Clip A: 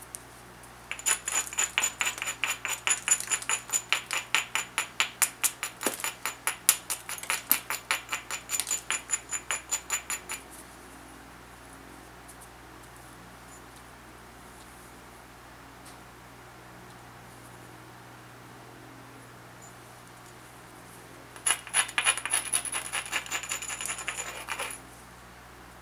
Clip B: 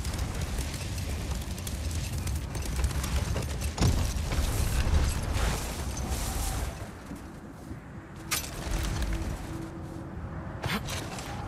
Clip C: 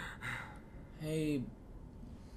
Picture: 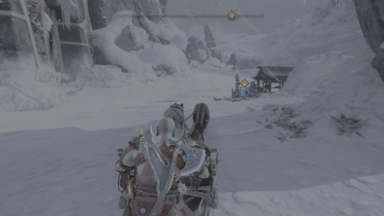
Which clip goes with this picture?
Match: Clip B